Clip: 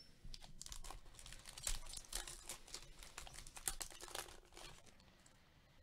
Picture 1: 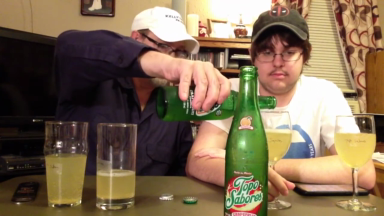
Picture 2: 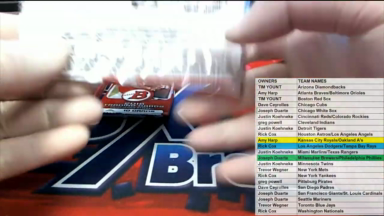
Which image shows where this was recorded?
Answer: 2